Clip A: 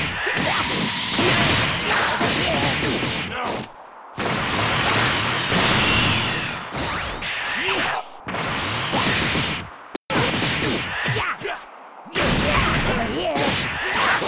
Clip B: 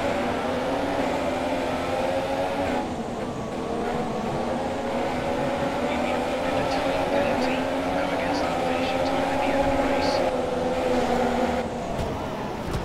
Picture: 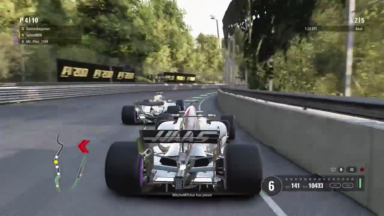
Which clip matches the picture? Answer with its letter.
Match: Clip B